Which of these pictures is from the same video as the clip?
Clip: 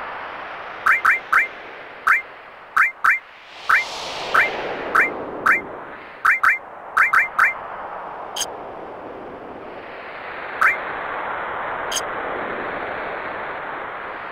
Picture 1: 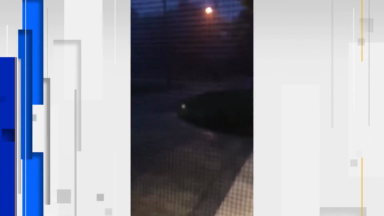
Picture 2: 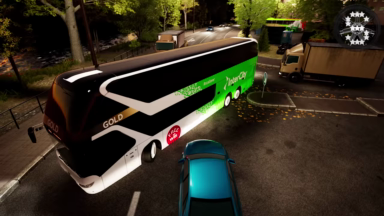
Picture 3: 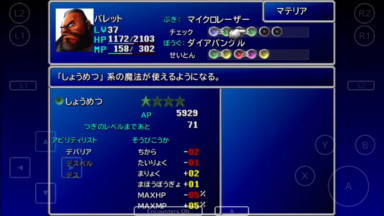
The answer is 3